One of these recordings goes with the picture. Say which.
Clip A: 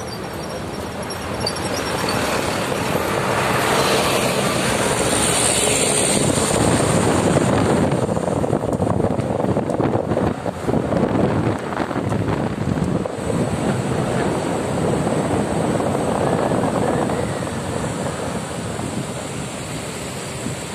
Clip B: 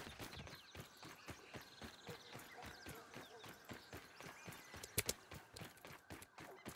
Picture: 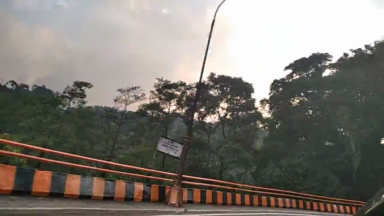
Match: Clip A